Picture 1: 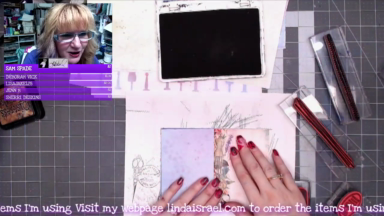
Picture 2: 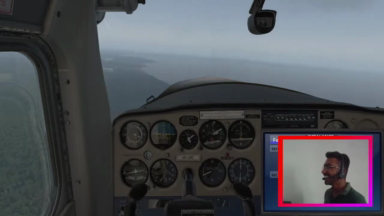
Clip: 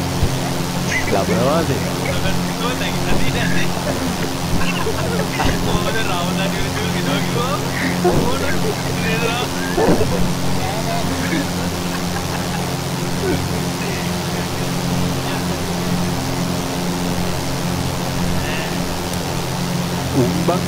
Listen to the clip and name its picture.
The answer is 2